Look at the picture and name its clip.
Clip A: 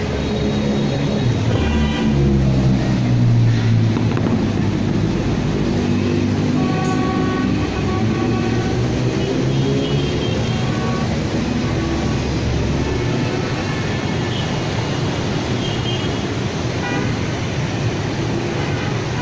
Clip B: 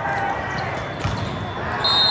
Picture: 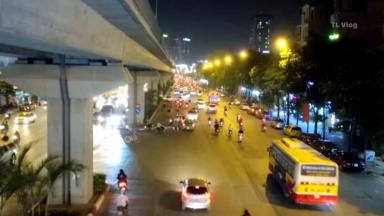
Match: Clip A